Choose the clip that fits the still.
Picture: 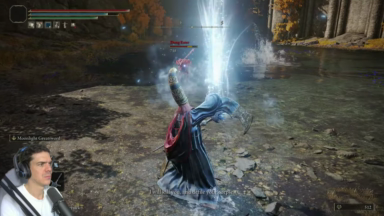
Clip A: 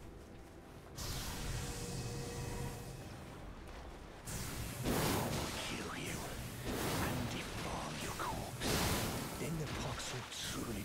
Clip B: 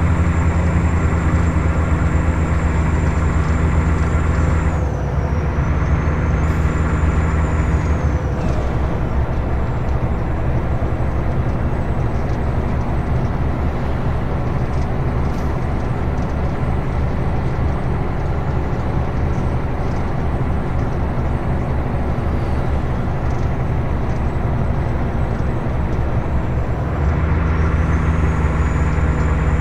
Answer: A